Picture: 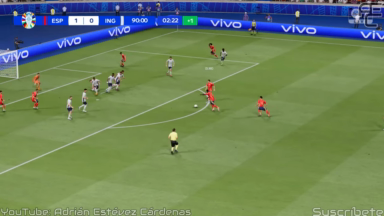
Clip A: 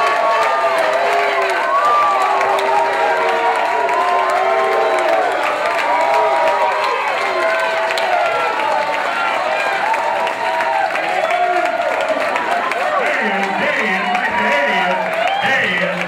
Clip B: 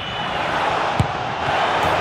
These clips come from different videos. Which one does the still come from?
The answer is B